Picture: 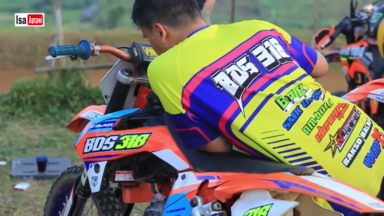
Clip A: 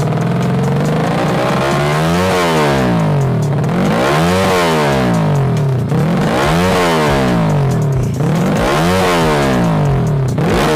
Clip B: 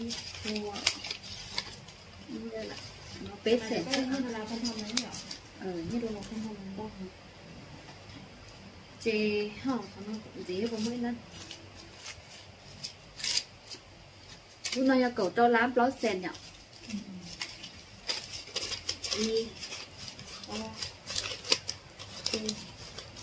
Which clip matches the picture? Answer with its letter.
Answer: A